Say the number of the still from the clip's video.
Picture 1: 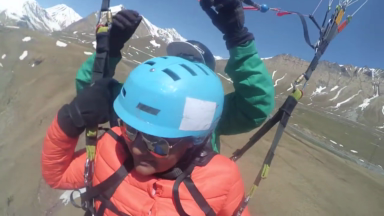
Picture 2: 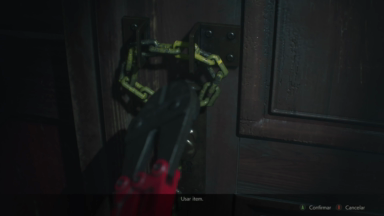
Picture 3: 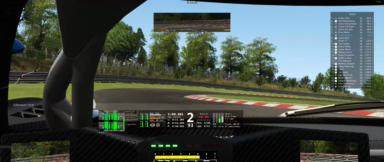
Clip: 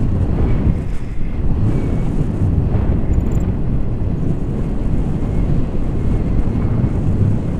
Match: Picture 1